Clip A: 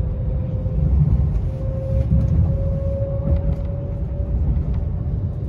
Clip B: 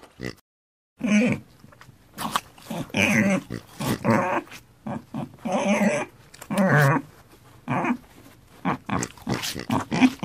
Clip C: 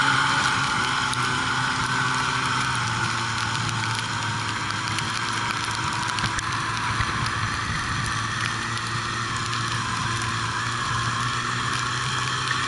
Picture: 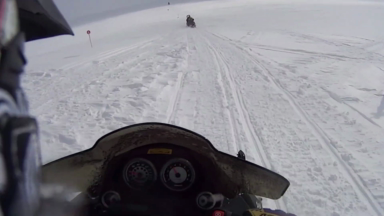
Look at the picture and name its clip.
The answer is C